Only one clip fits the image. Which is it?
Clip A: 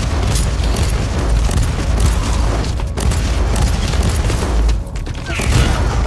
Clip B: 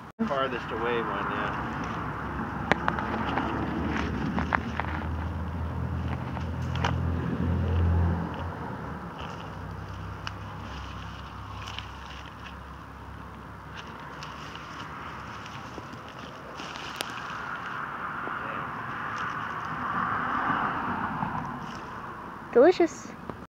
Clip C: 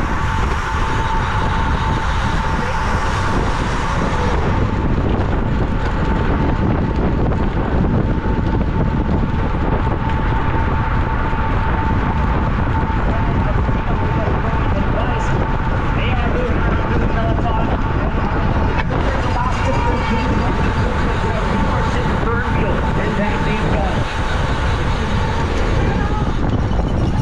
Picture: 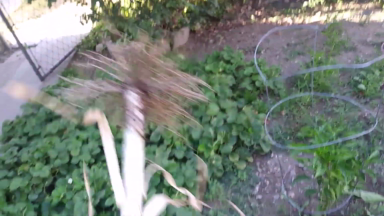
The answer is B